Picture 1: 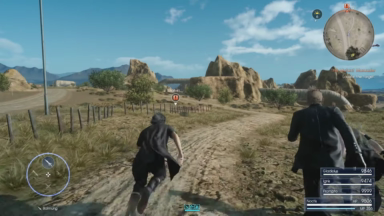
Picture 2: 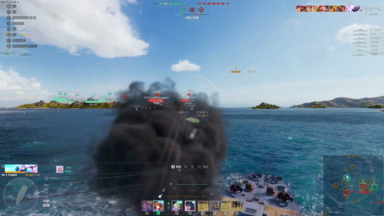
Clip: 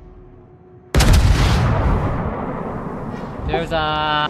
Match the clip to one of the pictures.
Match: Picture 2